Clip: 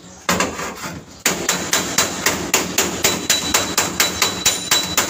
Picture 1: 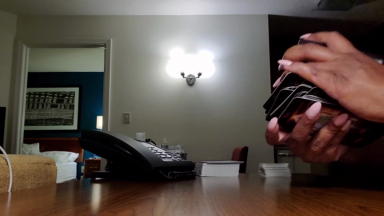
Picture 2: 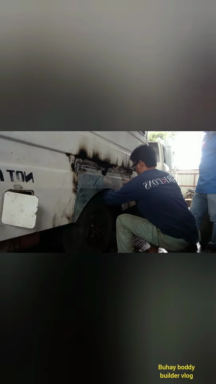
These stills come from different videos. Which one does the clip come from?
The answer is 2